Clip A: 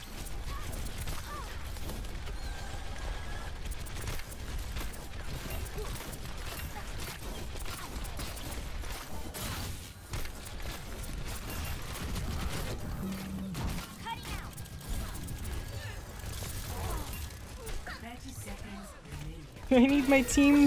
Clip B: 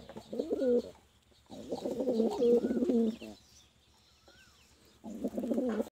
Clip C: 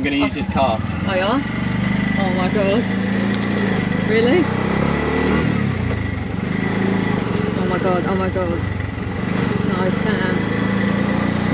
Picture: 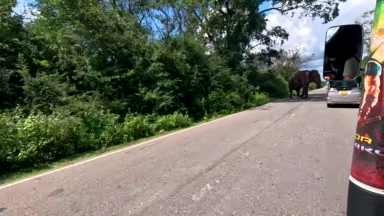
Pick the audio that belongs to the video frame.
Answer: C